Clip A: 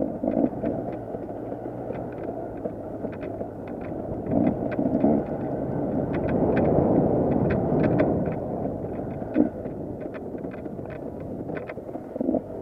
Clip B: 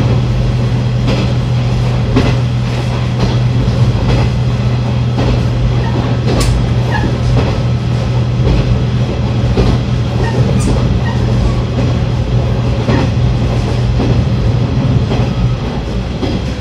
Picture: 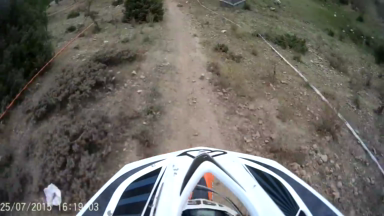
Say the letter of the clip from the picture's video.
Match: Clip A